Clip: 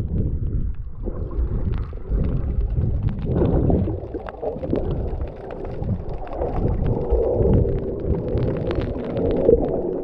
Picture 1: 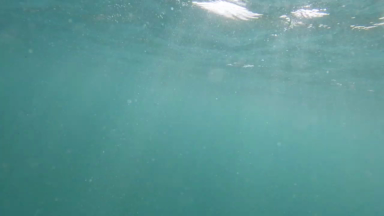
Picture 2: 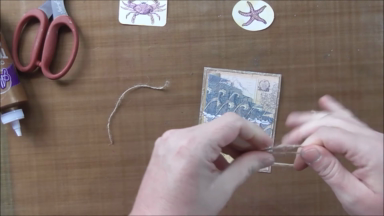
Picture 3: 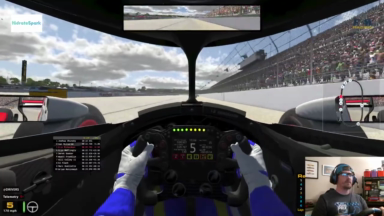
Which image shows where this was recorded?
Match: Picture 1